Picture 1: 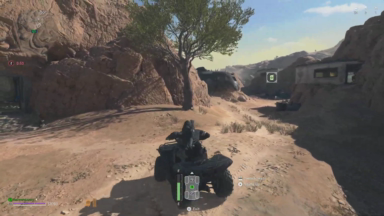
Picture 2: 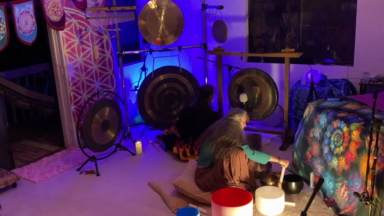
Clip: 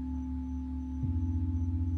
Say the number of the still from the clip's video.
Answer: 2